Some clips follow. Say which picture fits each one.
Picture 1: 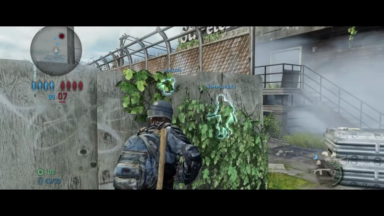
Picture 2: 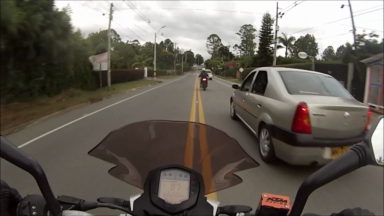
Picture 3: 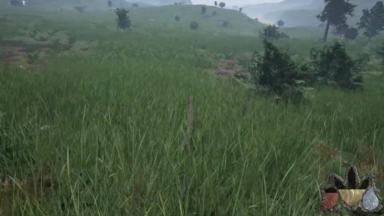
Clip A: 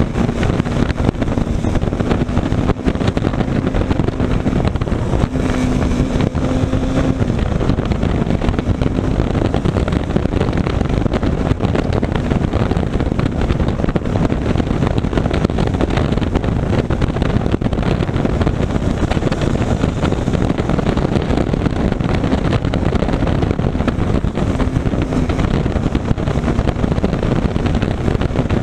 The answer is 2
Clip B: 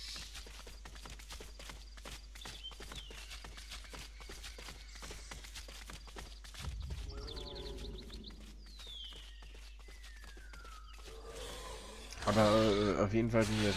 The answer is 3